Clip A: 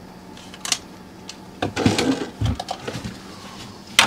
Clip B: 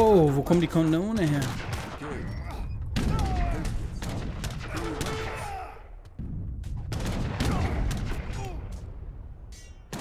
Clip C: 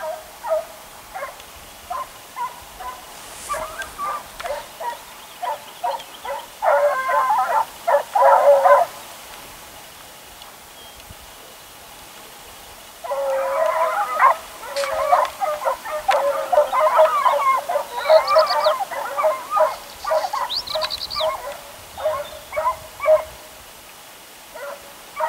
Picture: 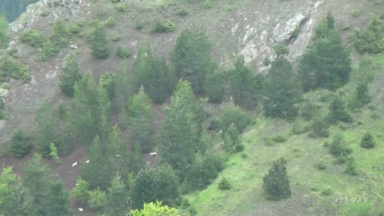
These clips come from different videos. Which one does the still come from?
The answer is C